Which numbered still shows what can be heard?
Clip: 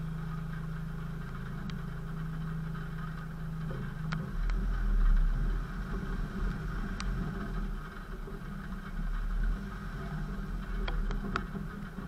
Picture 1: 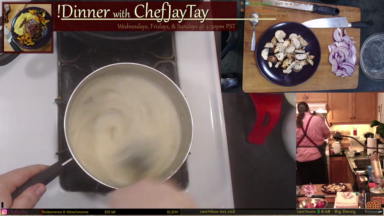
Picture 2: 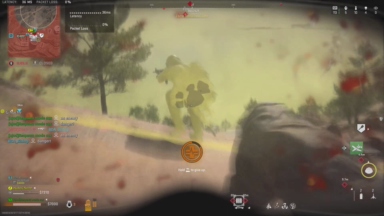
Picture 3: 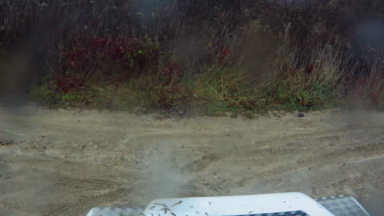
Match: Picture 3